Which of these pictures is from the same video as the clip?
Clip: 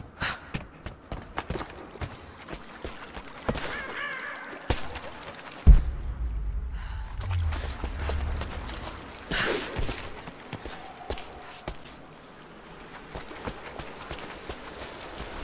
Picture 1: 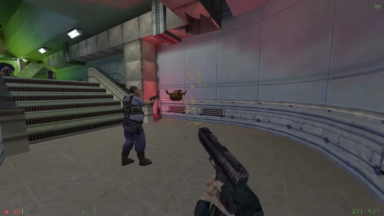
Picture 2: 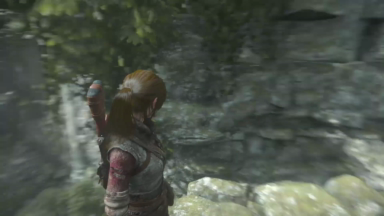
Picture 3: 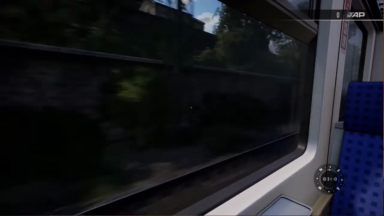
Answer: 2